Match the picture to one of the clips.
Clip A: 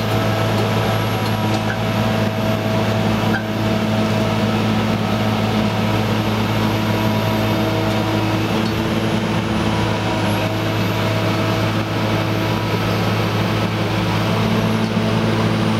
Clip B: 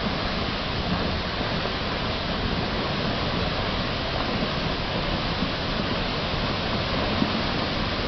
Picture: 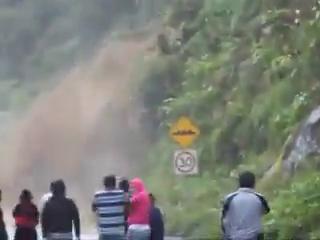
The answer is B